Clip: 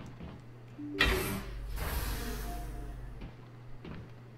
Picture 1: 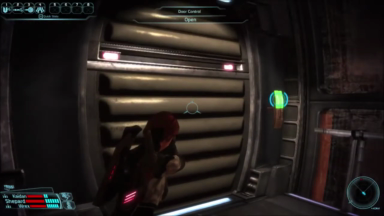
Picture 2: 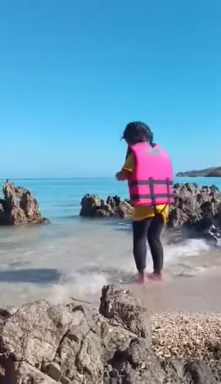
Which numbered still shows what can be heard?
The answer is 1